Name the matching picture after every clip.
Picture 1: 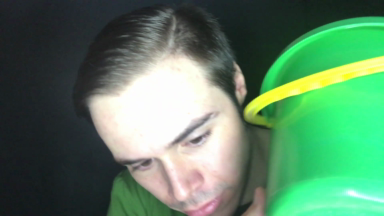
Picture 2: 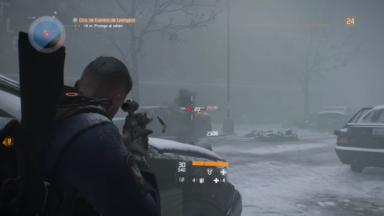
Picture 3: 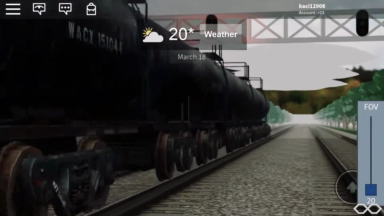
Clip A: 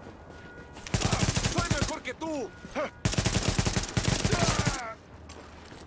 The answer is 2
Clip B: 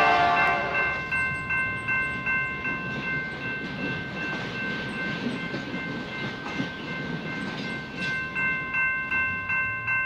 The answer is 3